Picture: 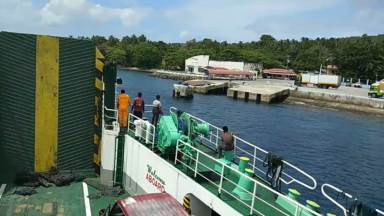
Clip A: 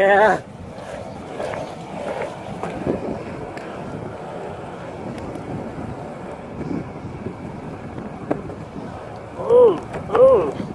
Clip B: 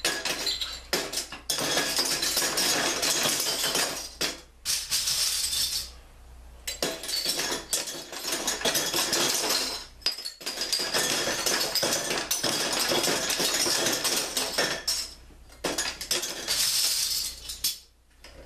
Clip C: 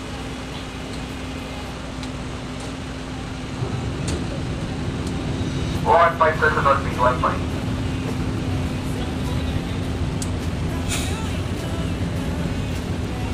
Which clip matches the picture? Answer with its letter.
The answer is C